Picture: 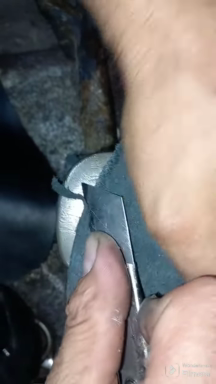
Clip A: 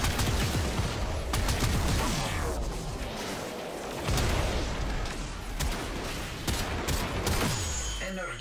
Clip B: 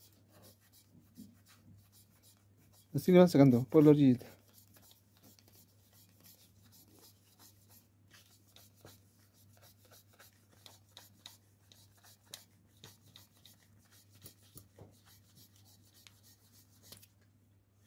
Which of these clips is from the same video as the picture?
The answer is B